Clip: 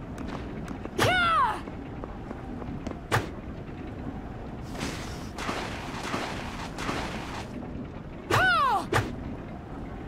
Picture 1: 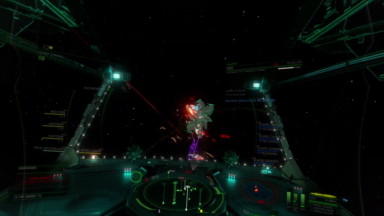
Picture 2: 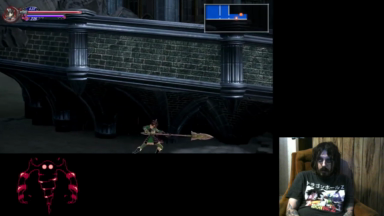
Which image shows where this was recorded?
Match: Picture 2